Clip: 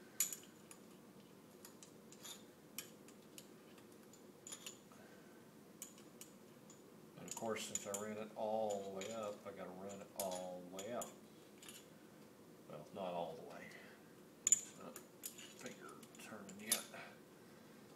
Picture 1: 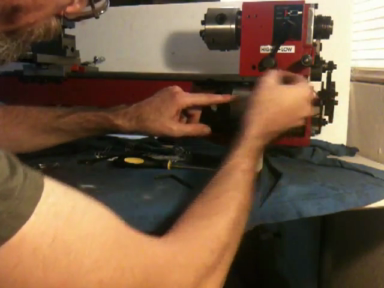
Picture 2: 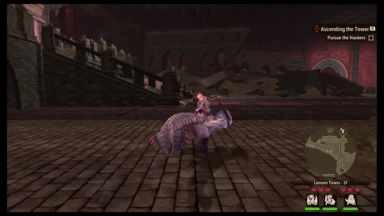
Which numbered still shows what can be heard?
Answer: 1